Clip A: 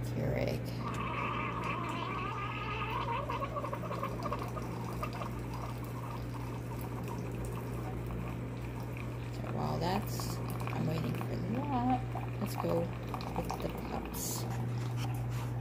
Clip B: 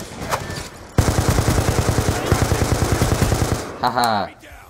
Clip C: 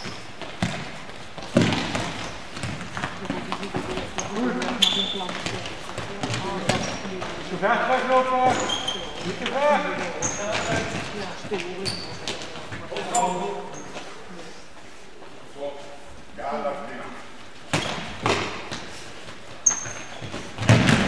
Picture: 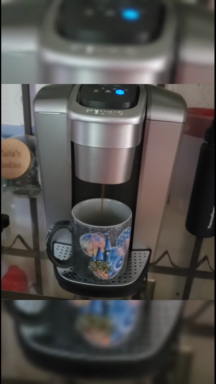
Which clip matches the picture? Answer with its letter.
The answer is A